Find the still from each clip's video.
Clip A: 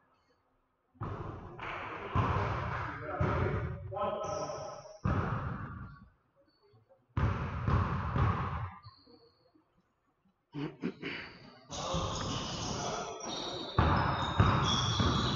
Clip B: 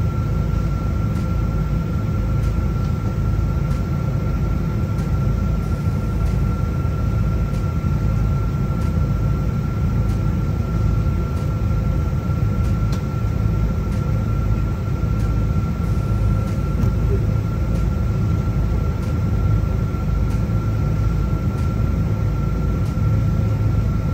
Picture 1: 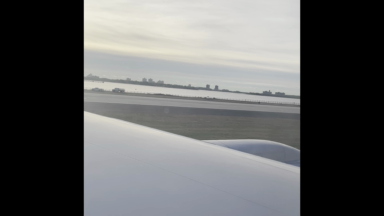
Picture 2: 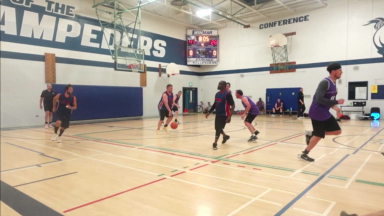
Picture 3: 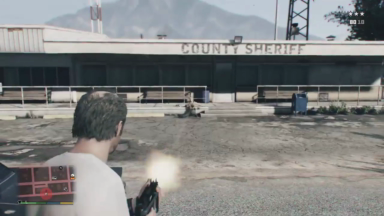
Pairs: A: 2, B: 1